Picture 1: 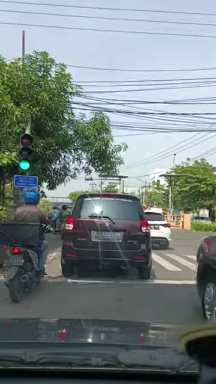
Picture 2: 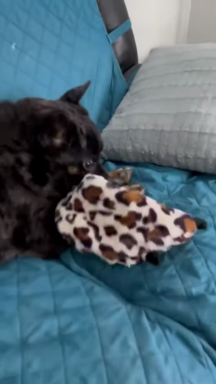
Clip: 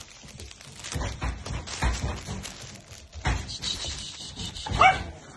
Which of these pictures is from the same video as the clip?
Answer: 2